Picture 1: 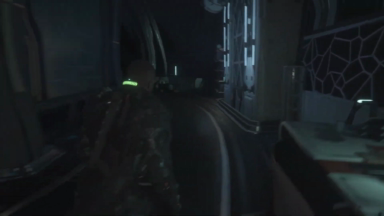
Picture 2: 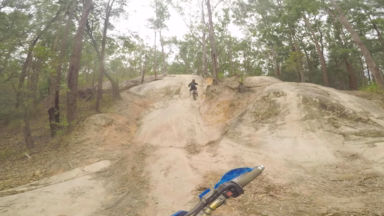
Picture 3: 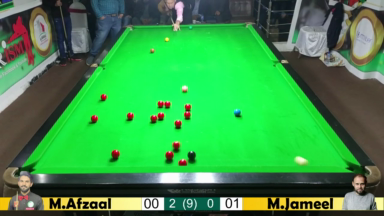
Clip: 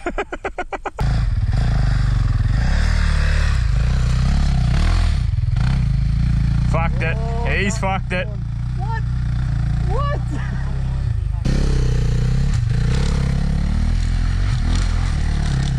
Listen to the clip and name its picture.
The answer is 2